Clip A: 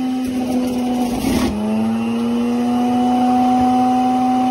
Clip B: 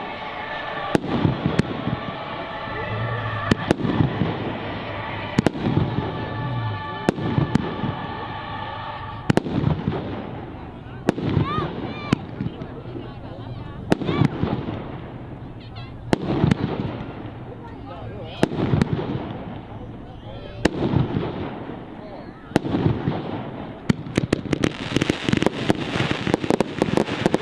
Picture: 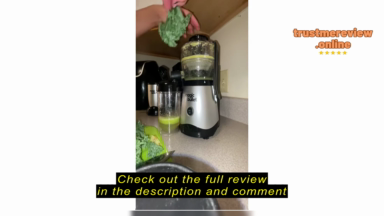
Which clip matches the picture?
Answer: A